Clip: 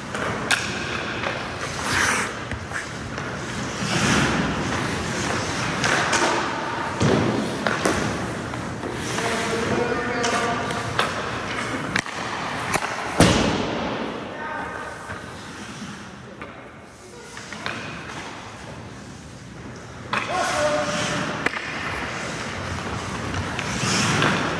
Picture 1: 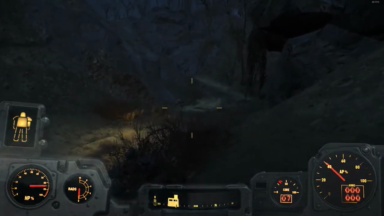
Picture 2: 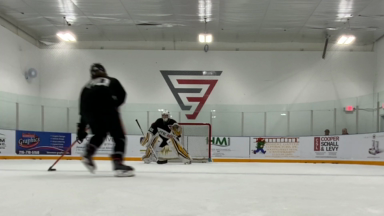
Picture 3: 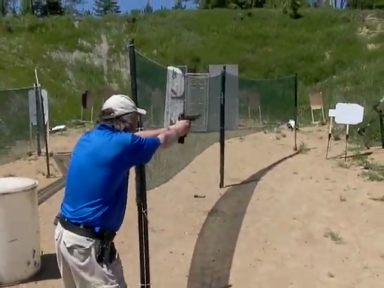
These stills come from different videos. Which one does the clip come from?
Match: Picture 2